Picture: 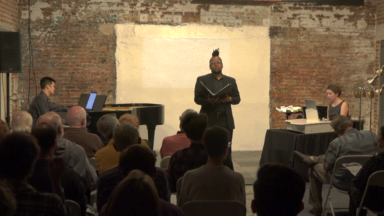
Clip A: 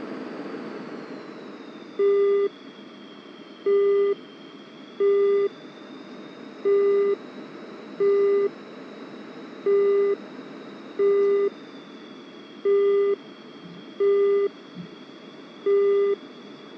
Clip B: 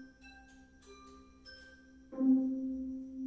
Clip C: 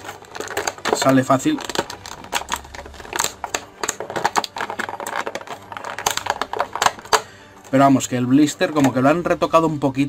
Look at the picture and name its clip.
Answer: B